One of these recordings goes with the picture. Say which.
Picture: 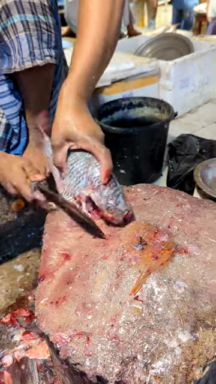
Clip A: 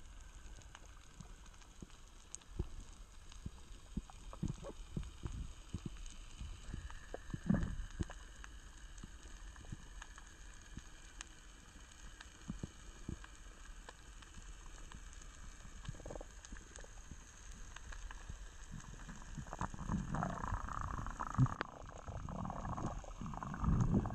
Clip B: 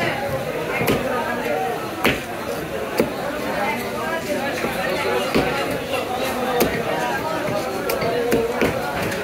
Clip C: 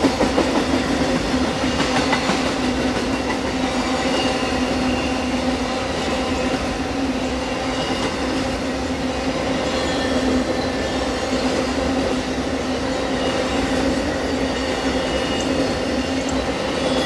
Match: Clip B